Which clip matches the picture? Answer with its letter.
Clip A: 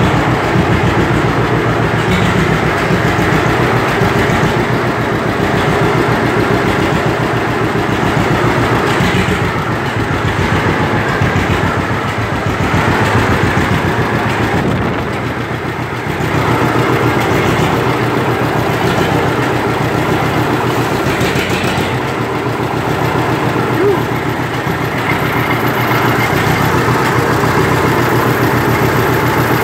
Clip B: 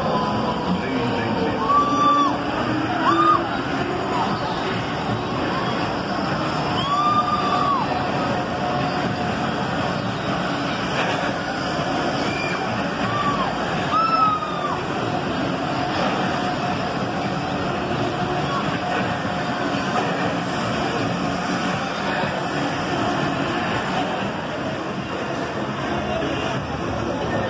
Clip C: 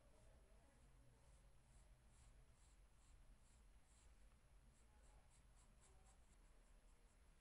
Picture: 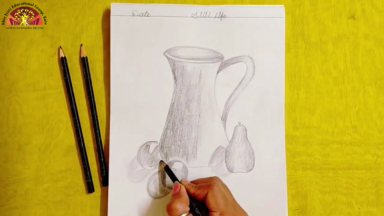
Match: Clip C